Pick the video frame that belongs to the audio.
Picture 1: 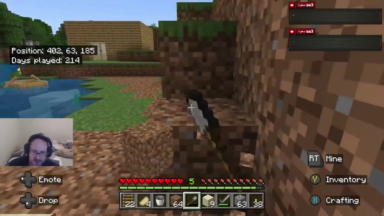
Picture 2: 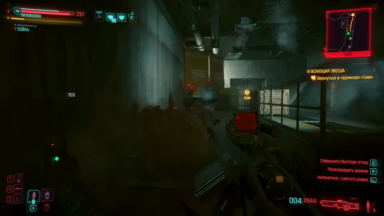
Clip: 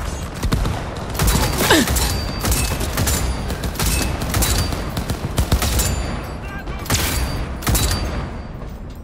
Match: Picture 2